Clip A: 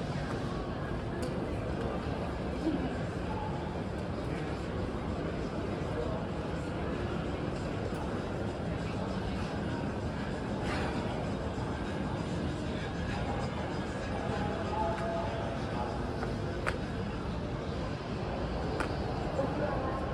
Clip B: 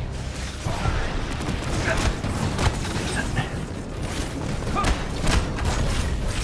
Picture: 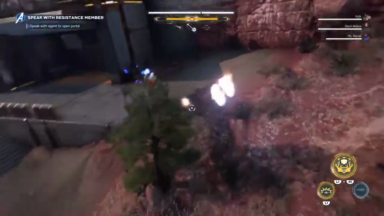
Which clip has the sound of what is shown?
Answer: B